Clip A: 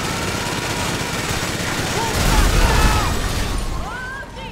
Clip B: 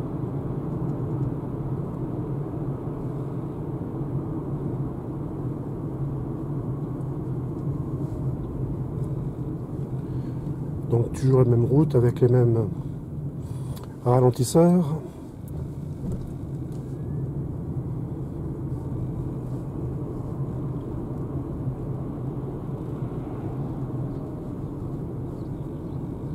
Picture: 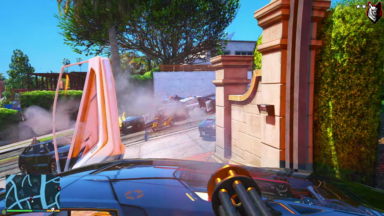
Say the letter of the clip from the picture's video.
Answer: A